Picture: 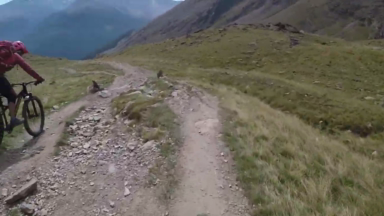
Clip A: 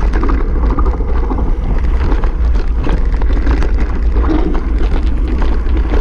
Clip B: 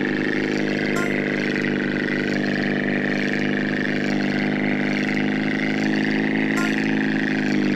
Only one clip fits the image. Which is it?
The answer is A